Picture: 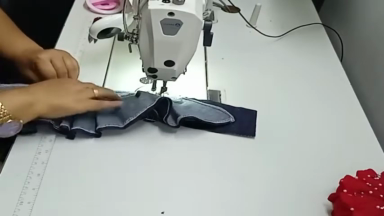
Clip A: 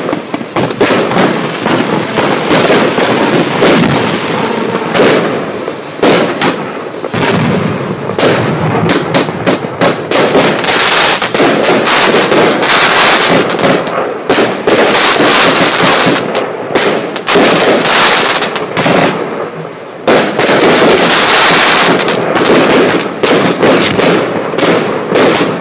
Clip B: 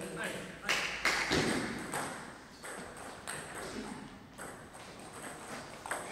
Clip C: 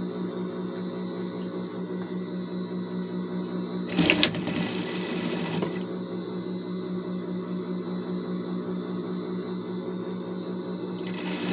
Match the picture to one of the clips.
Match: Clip C